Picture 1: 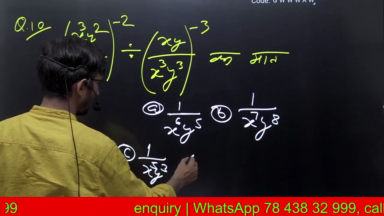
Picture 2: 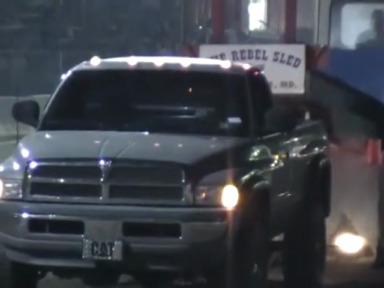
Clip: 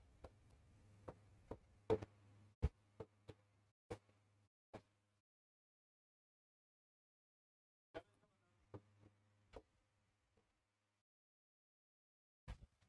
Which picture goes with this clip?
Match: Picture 1